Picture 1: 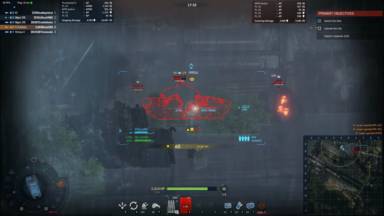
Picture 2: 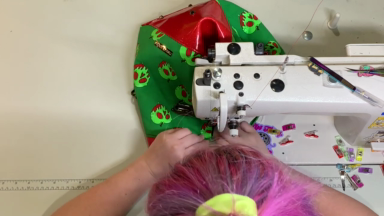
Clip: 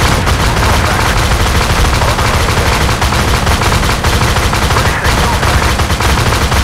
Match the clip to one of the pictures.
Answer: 1